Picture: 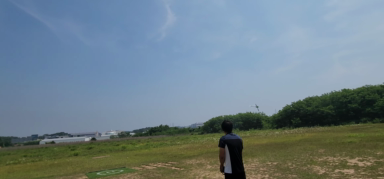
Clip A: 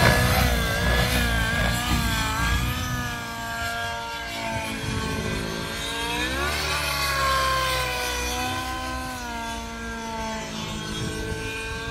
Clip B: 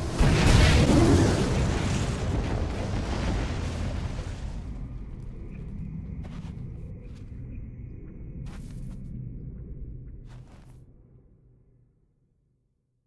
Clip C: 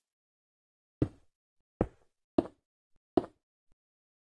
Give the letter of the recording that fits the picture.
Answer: A